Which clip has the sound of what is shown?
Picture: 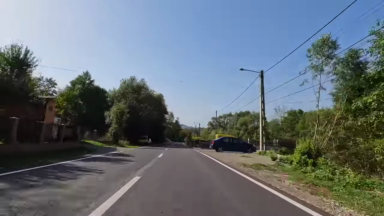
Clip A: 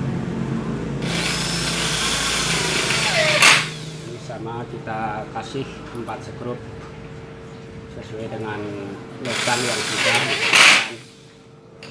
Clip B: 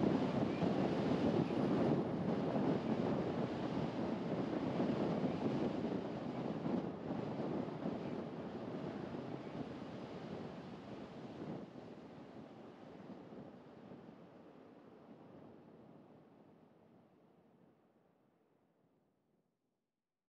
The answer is B